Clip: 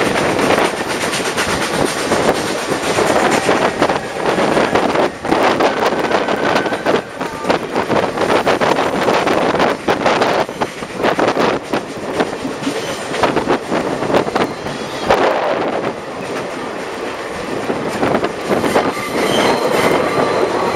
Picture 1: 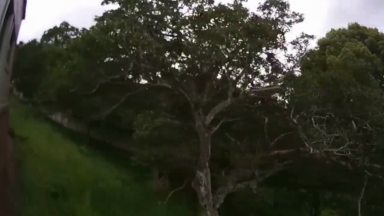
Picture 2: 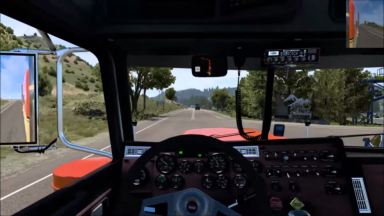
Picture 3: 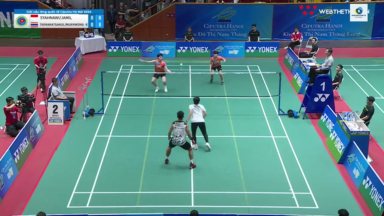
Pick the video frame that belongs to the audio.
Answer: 1